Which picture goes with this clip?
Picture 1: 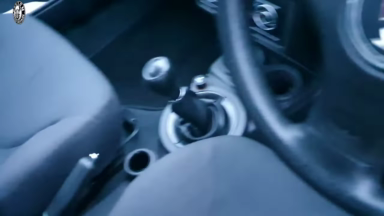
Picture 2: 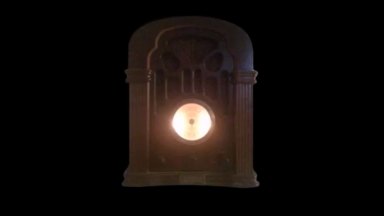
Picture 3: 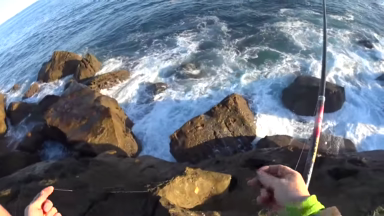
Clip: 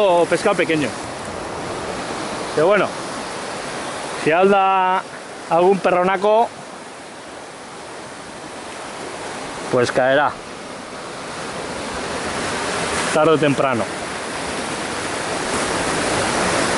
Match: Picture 3